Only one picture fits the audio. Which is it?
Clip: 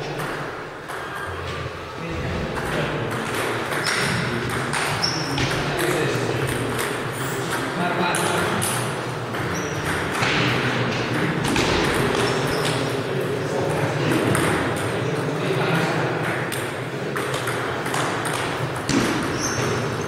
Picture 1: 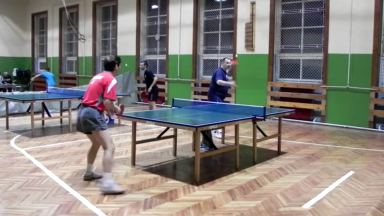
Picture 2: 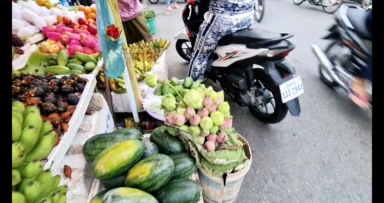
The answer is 1